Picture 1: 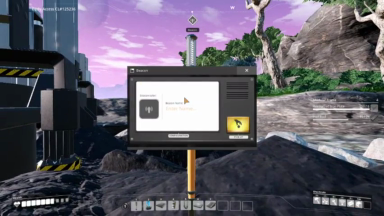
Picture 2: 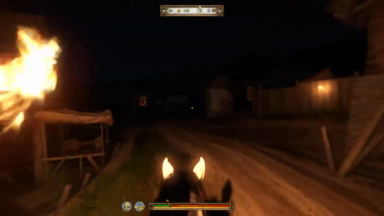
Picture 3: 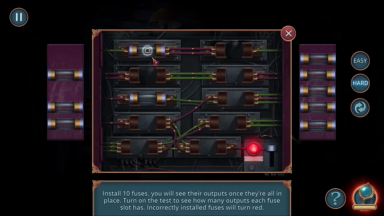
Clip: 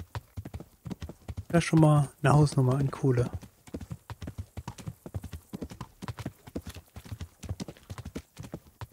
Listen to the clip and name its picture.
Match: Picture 2